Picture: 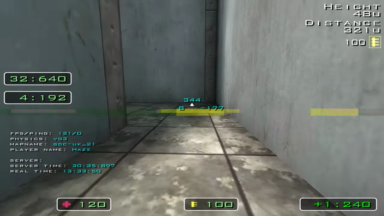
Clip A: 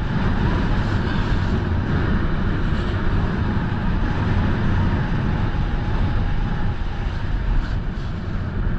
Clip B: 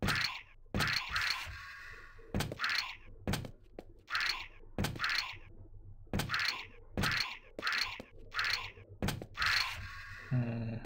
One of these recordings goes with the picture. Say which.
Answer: B